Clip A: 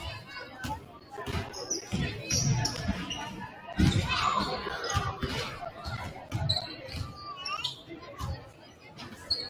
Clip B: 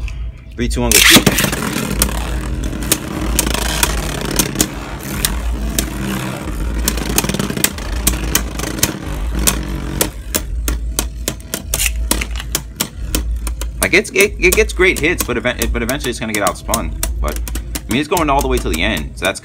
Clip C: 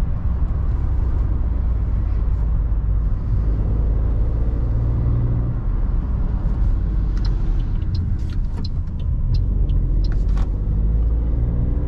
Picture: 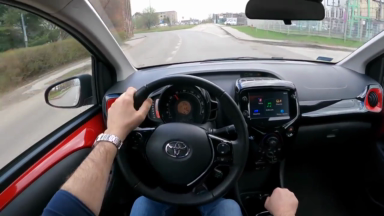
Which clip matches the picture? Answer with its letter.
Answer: C